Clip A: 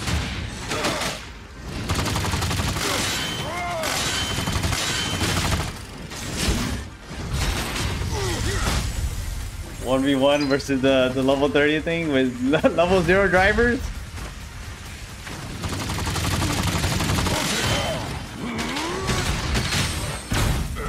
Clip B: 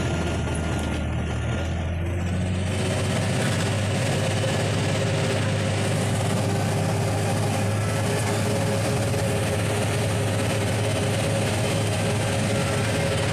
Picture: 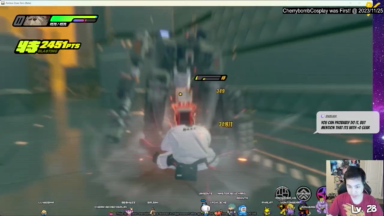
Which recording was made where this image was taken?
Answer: A